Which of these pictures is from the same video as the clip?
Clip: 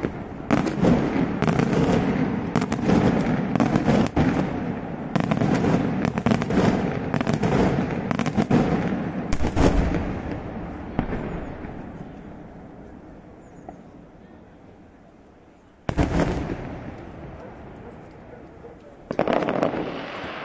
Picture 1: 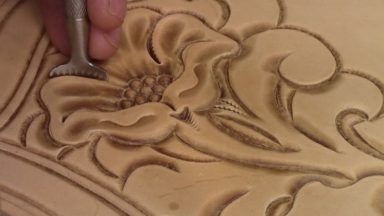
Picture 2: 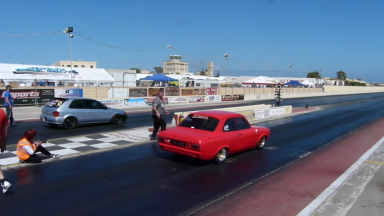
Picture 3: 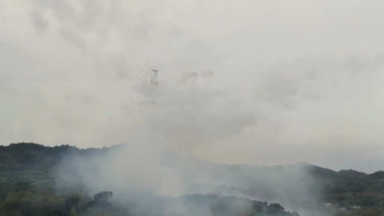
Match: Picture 3